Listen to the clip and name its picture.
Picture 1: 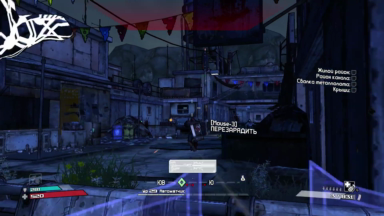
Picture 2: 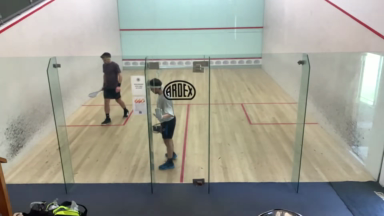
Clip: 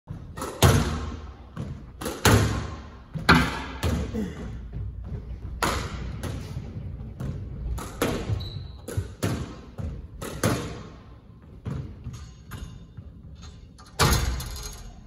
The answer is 2